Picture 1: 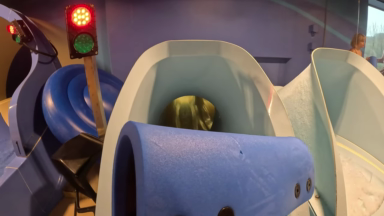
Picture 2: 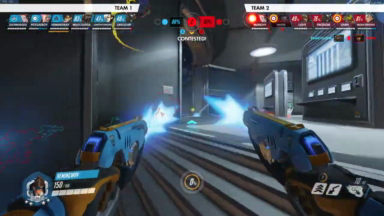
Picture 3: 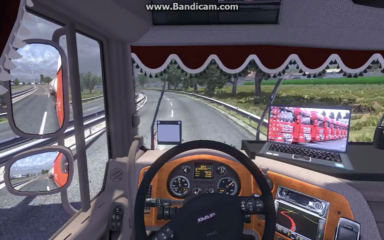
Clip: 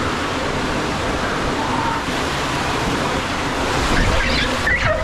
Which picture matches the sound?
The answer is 1